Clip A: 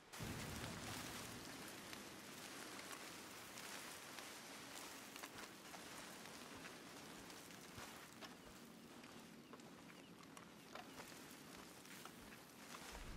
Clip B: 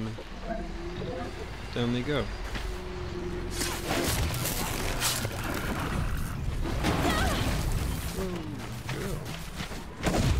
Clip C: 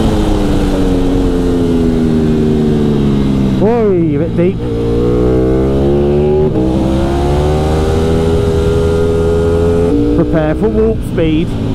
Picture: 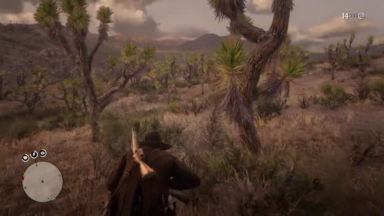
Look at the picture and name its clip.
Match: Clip A